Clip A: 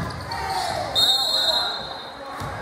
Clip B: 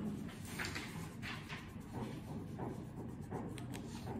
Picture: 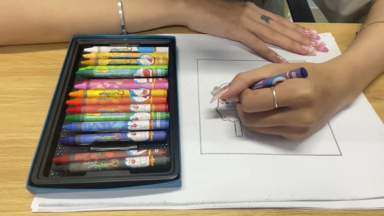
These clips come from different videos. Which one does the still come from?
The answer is B